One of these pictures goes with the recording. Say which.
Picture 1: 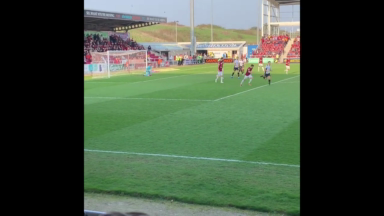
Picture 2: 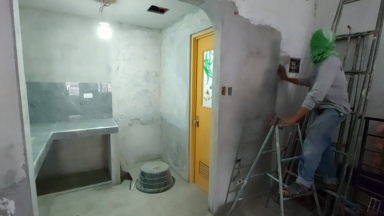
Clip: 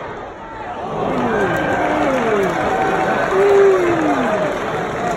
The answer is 1